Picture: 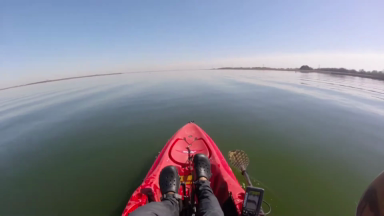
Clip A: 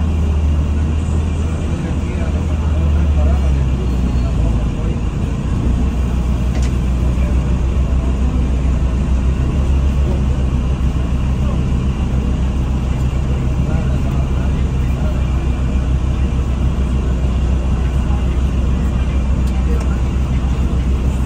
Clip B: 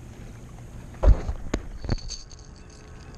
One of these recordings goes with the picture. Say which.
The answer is B